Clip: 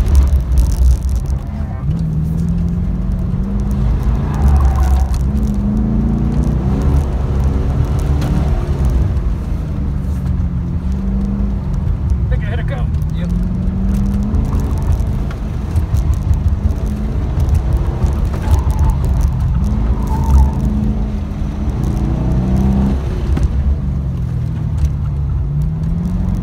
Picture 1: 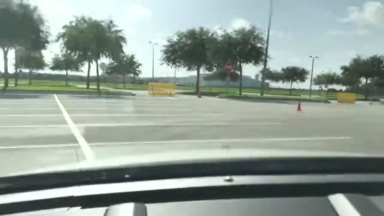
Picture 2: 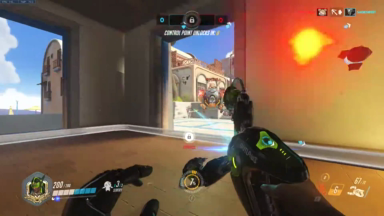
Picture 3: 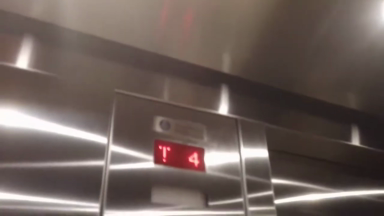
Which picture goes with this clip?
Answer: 1